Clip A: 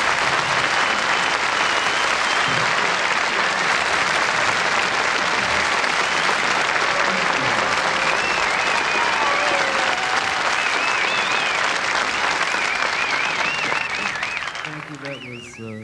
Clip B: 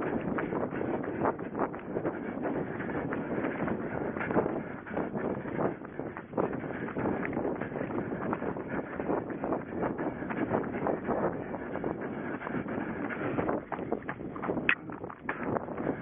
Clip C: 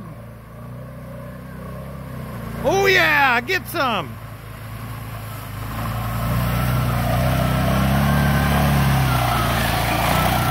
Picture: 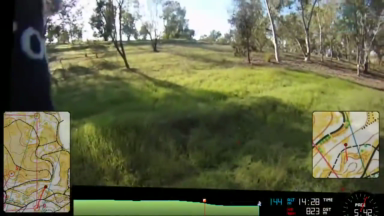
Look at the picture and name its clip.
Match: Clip B